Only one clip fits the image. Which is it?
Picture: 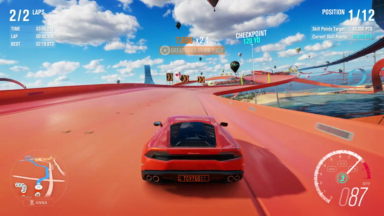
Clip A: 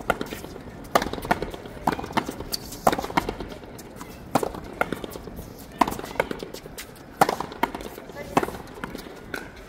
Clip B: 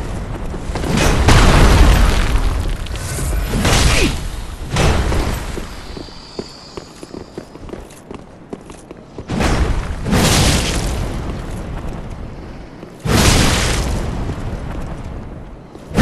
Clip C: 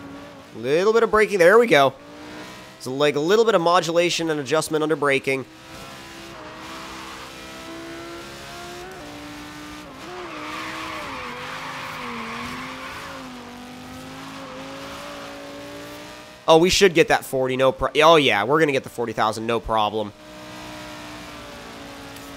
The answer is C